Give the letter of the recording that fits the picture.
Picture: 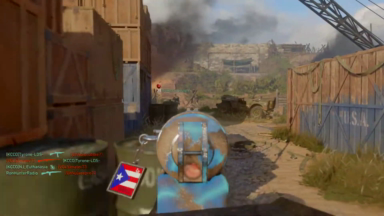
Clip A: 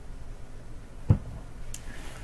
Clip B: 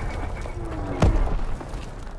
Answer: B